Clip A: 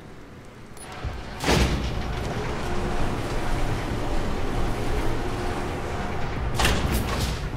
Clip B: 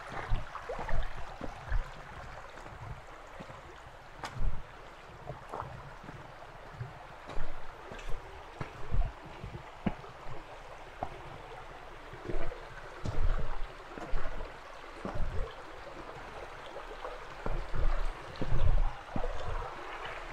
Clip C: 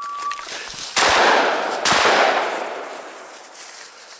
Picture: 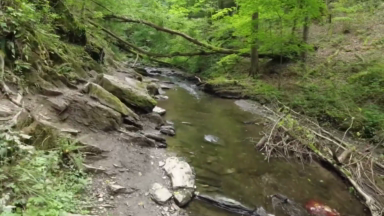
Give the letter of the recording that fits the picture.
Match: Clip B